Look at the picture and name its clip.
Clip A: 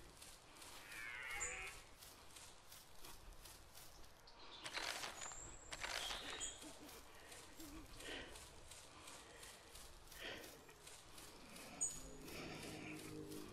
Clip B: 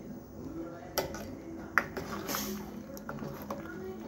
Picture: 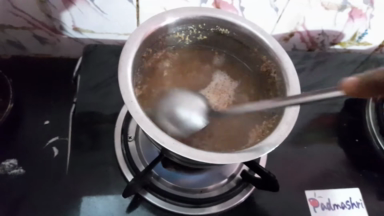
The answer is B